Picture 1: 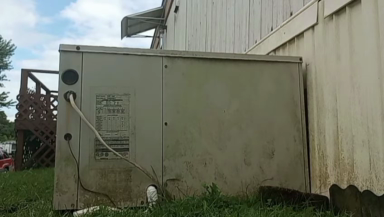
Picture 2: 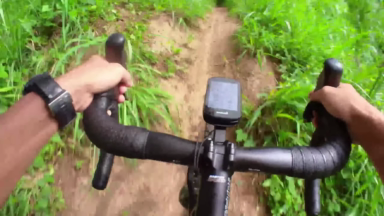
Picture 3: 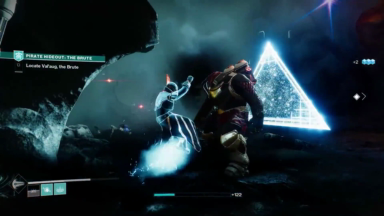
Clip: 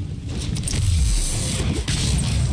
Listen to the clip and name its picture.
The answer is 3